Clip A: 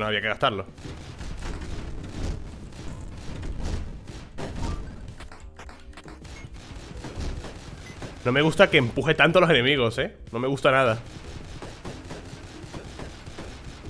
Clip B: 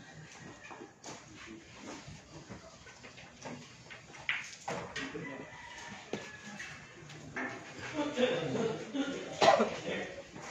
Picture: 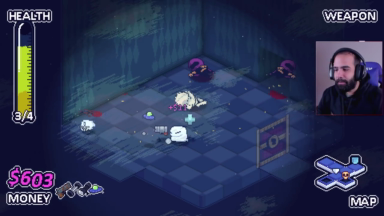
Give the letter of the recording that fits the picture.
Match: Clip A